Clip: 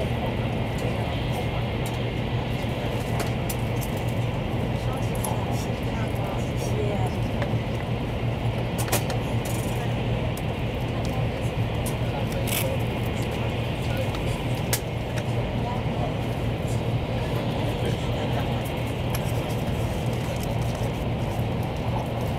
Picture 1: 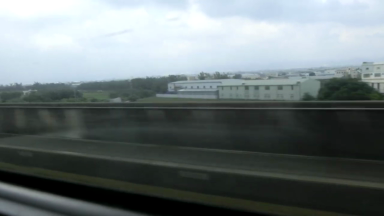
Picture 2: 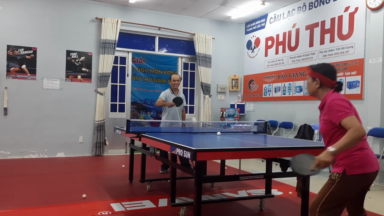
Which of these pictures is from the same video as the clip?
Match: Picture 1